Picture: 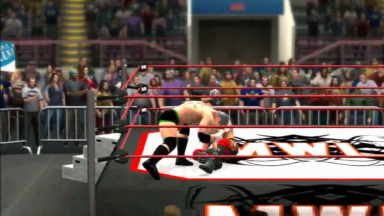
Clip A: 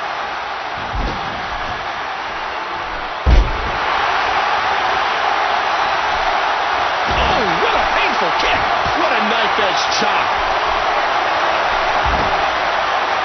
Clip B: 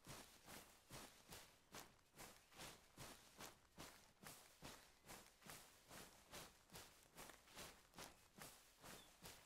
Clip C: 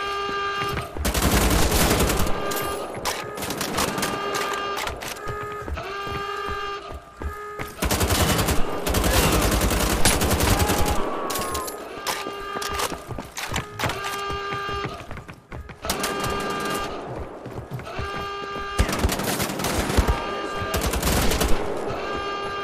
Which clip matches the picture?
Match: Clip A